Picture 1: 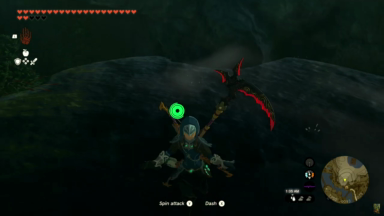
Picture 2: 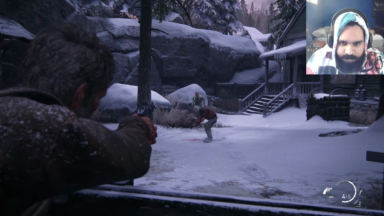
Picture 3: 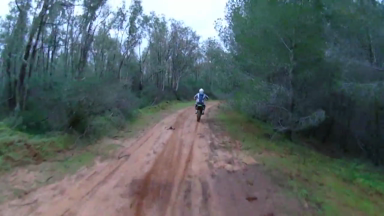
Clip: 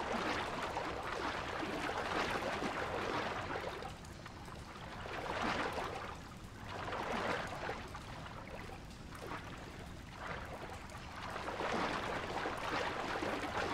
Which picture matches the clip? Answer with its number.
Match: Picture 1